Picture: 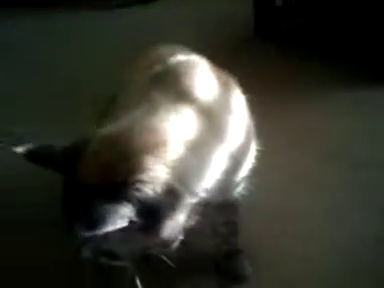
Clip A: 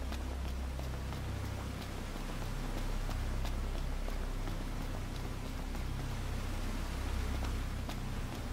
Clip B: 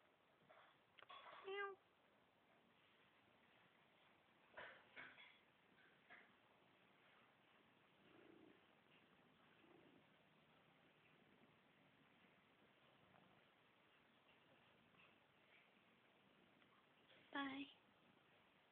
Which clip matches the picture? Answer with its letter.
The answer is B